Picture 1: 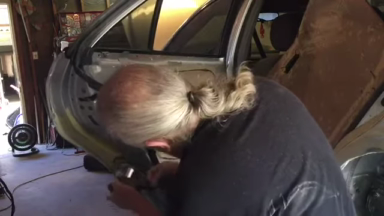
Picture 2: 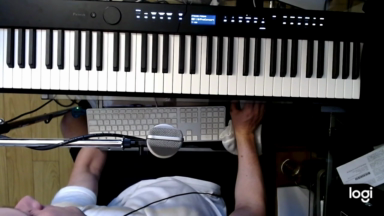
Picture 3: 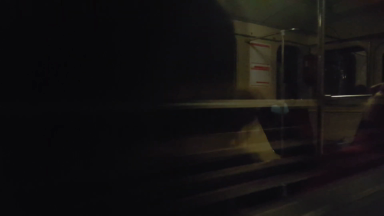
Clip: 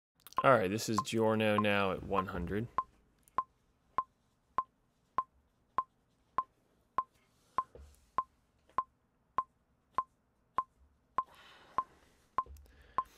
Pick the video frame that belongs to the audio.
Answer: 2